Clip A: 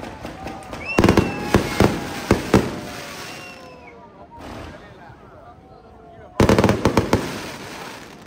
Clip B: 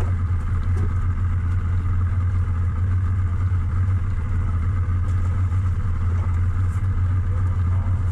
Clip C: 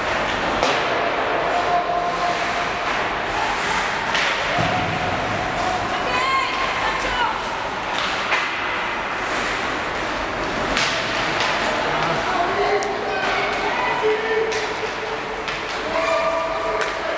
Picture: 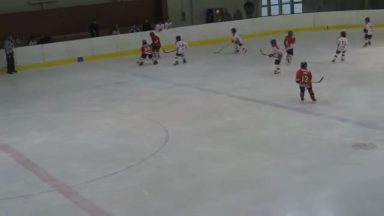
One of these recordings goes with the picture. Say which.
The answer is C